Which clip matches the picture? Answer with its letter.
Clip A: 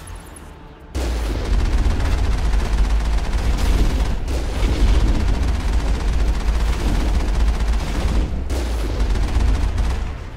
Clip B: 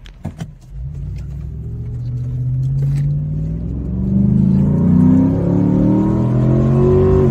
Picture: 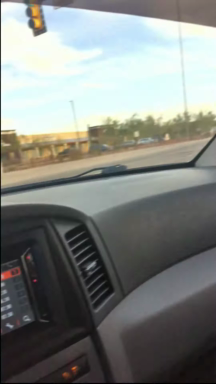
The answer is B